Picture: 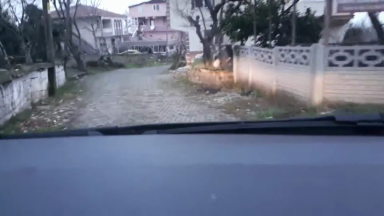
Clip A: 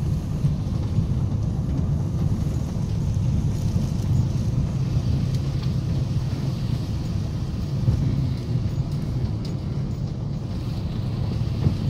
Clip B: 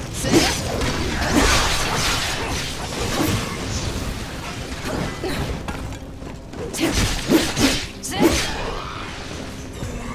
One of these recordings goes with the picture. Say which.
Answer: A